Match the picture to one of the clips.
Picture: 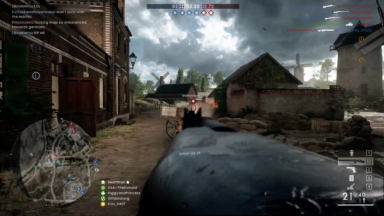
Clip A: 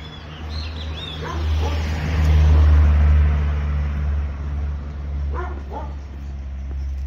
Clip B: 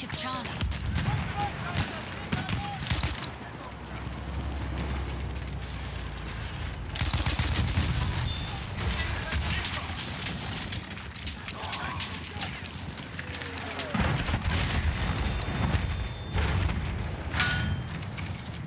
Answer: B